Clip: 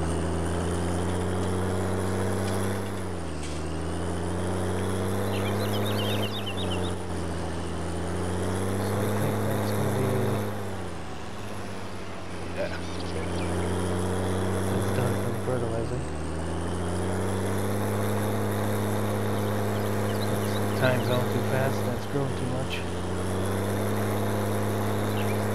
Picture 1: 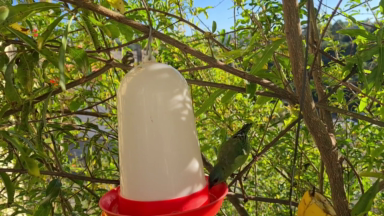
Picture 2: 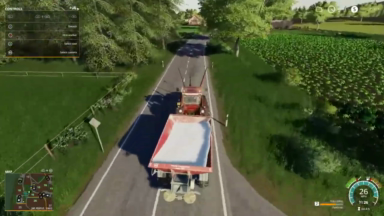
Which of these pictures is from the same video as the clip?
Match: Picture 2